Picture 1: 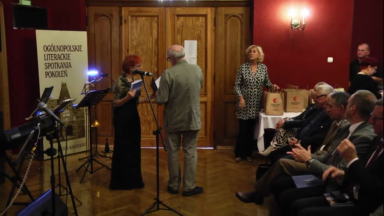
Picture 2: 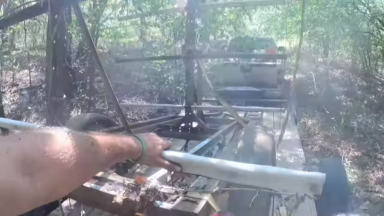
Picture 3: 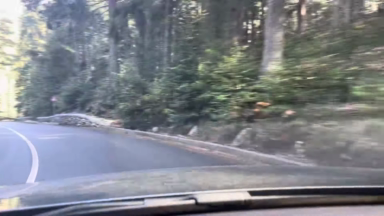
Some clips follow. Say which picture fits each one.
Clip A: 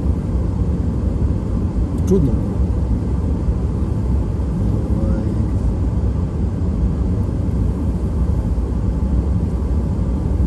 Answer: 3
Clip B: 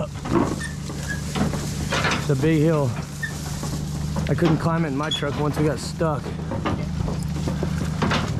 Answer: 2